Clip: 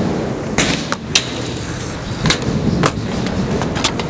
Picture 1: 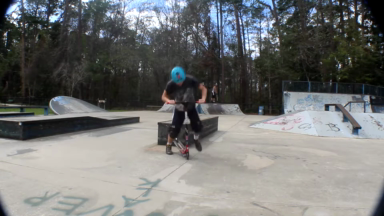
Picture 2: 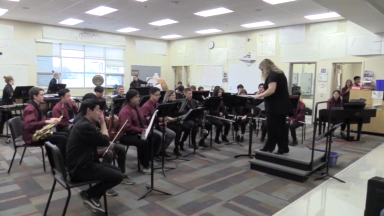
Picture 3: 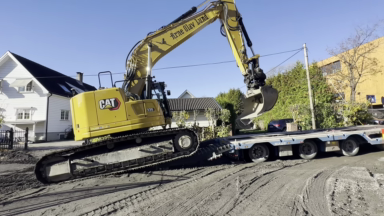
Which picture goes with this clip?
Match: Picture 1